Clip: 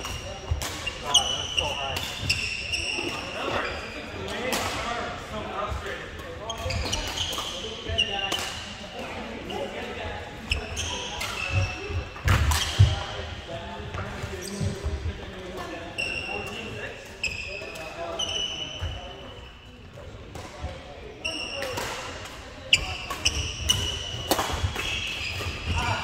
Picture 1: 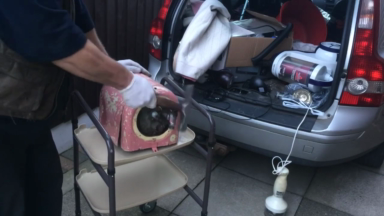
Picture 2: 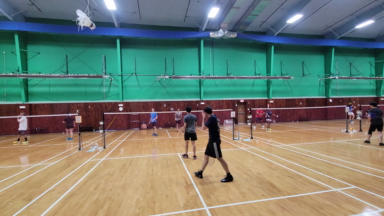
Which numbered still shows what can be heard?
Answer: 2